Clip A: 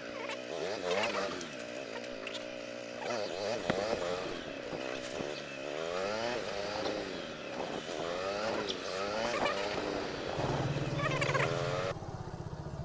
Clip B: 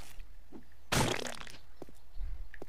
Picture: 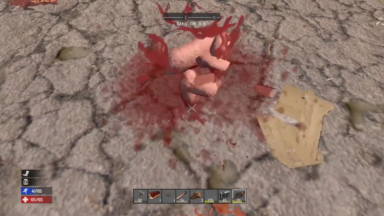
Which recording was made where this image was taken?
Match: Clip B